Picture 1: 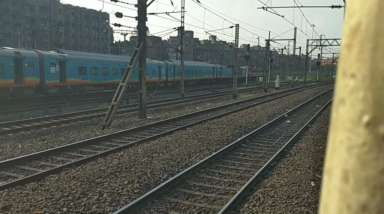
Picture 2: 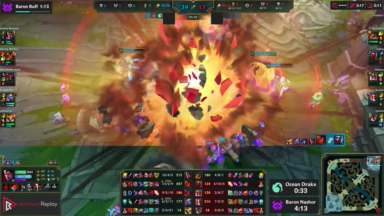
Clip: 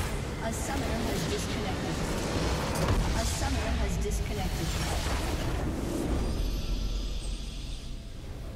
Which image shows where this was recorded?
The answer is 2